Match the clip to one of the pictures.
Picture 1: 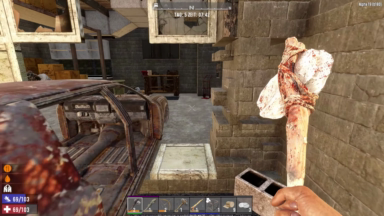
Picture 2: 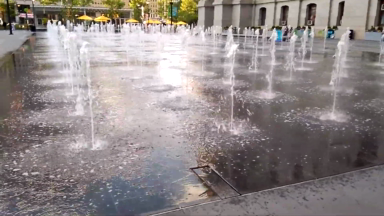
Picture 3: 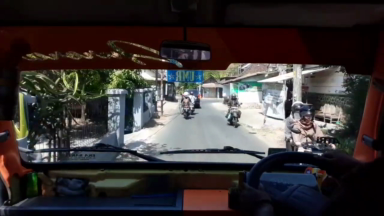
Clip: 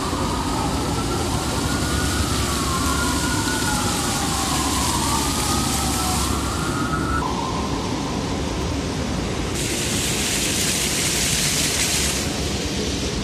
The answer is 2